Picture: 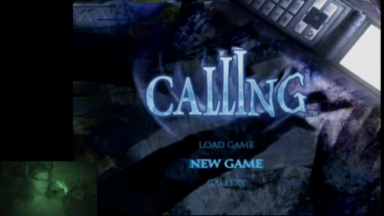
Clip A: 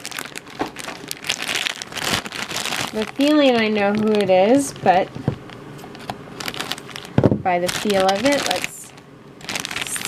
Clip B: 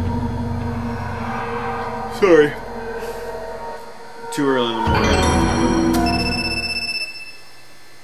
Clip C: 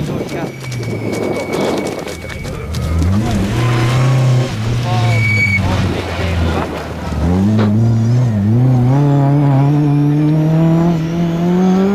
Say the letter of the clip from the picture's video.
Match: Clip B